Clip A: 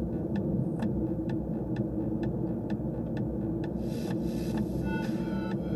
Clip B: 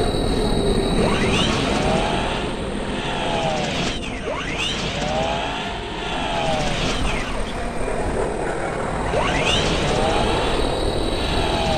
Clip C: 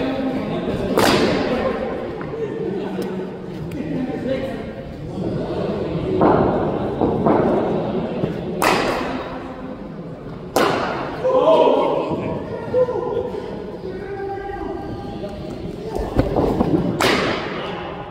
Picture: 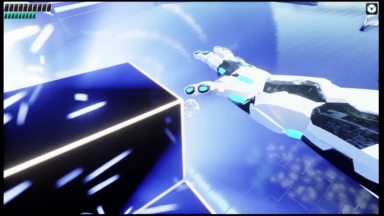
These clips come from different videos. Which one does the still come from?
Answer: B